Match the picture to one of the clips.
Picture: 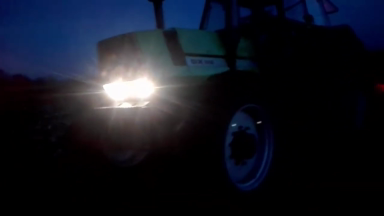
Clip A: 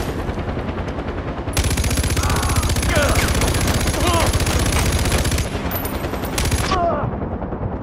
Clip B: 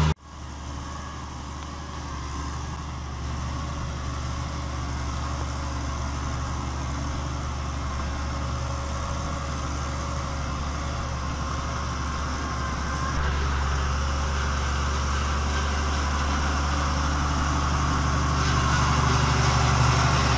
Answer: B